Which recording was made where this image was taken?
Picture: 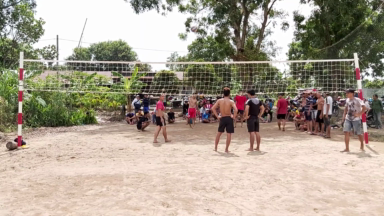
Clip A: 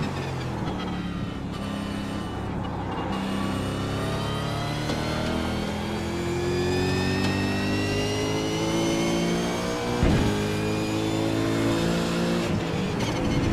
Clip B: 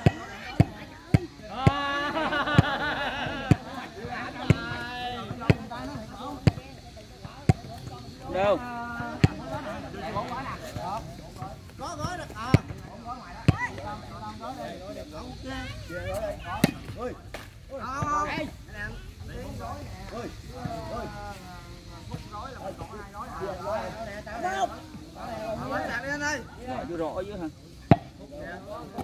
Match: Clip B